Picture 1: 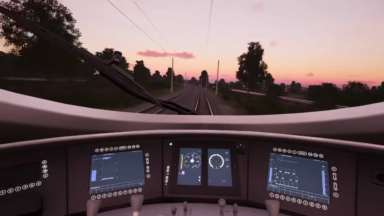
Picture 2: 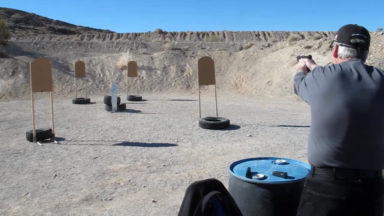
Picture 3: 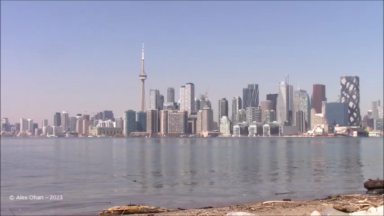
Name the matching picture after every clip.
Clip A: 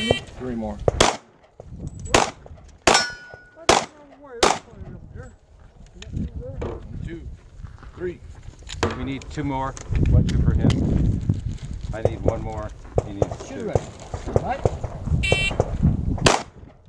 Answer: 2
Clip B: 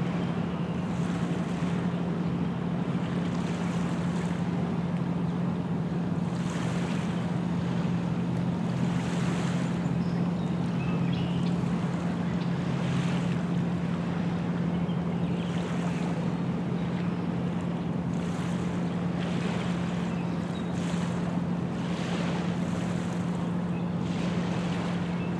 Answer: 3